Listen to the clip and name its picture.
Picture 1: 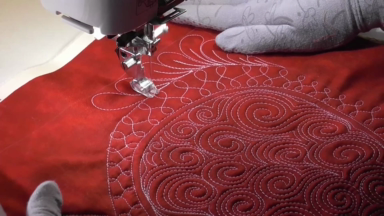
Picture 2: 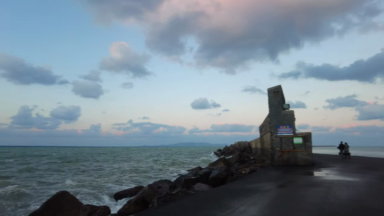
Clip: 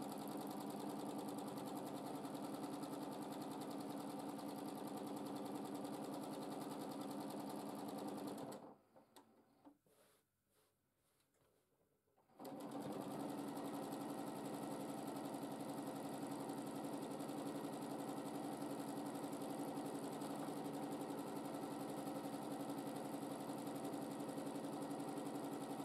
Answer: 1